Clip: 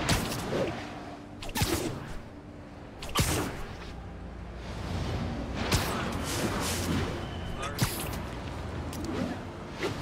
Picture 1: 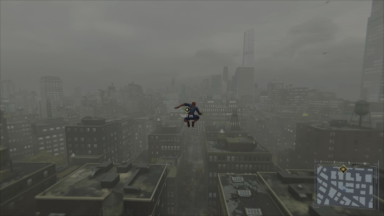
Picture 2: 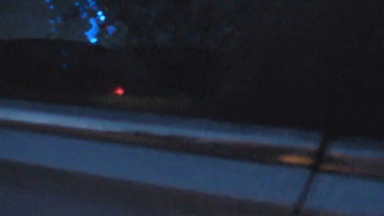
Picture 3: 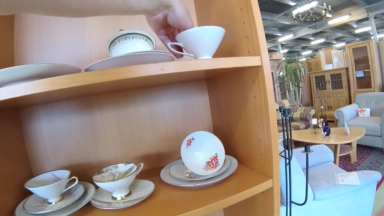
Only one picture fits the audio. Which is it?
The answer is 1